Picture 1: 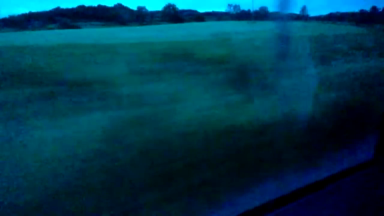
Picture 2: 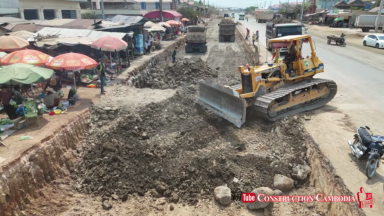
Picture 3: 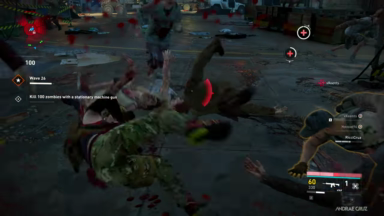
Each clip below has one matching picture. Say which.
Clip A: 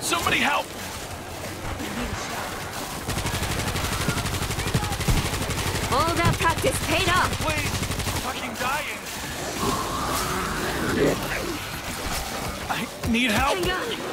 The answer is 3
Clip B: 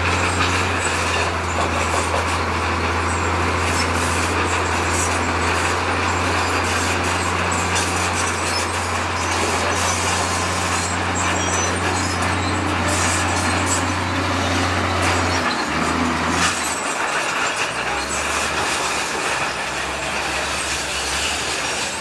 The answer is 2